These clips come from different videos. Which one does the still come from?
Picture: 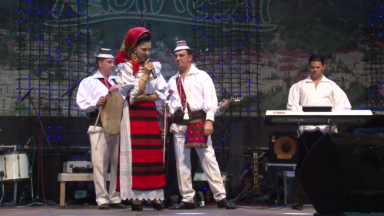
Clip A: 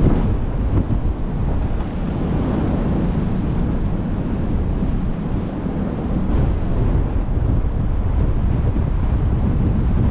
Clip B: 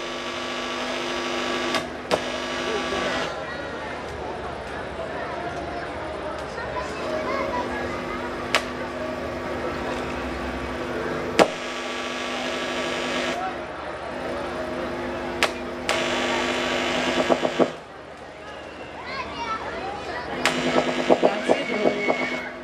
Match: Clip B